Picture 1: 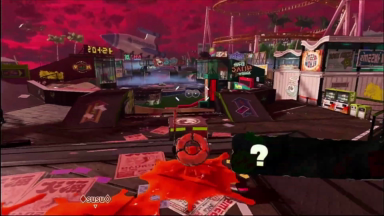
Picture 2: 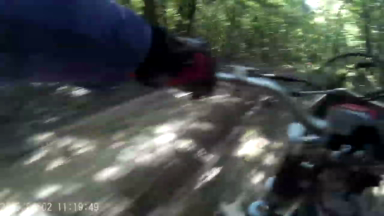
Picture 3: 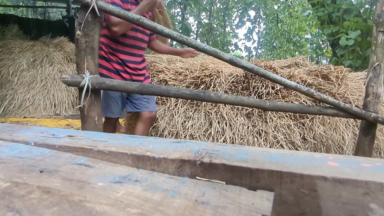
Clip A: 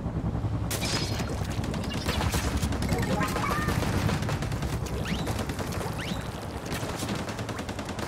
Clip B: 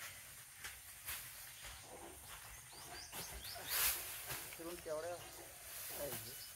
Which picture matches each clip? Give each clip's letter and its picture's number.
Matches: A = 1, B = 3